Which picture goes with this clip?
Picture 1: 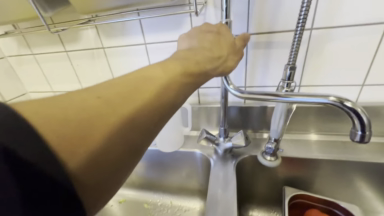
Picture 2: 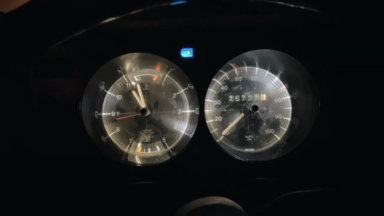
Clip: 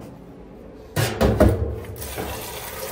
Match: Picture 1